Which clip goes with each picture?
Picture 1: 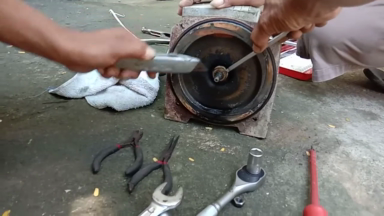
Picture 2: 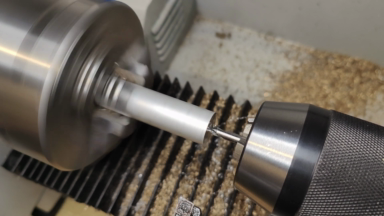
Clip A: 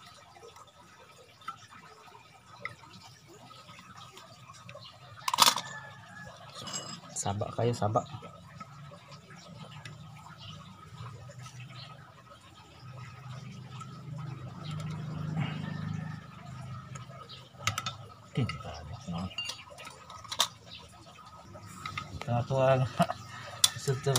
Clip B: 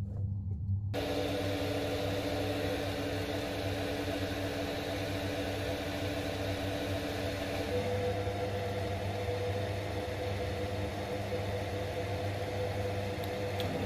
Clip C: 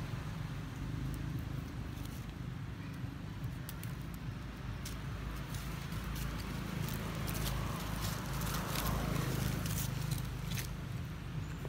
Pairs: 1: A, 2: B